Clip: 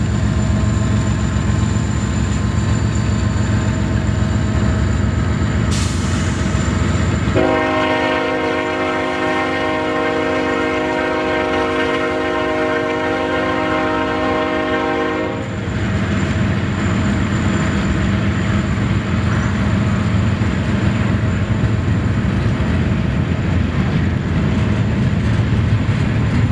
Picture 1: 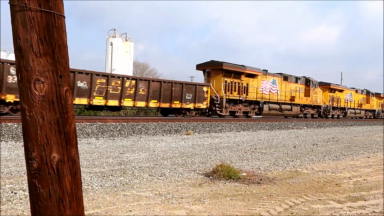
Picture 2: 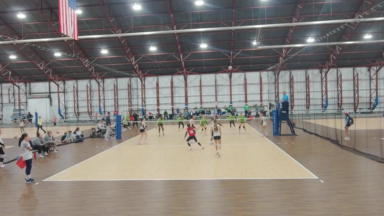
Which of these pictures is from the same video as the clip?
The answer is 1